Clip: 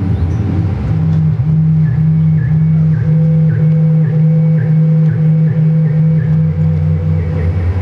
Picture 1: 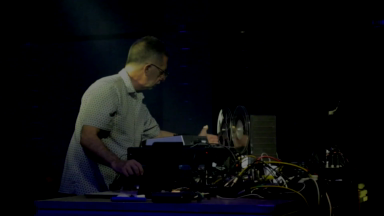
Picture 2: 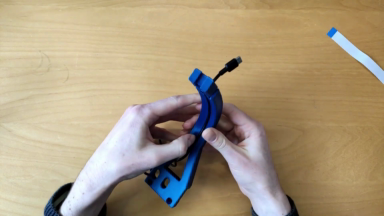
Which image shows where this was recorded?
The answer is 1